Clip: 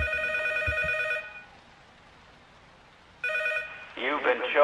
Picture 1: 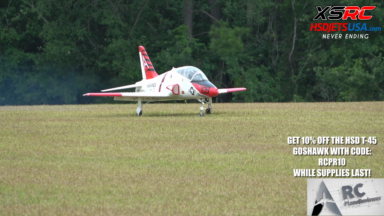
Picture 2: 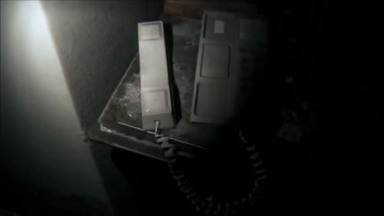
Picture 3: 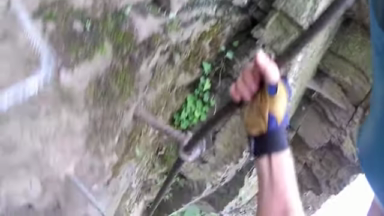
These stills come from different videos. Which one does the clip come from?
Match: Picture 2